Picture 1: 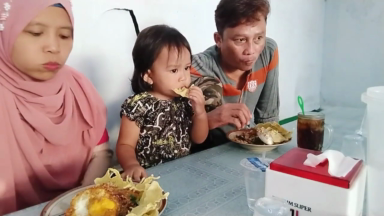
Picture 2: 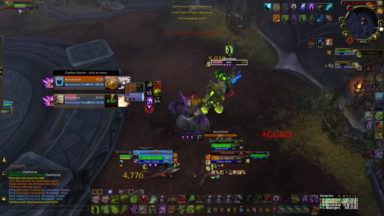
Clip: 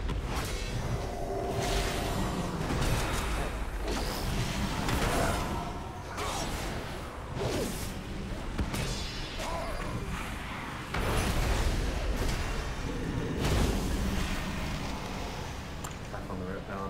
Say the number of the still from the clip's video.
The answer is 2